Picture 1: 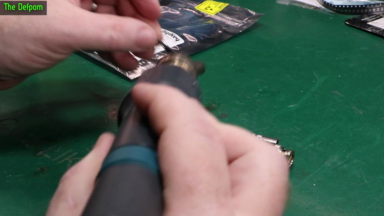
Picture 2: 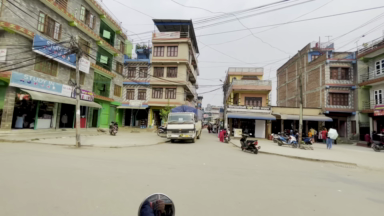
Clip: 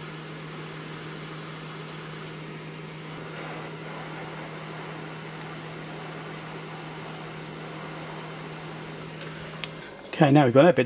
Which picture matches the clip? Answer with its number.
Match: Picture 1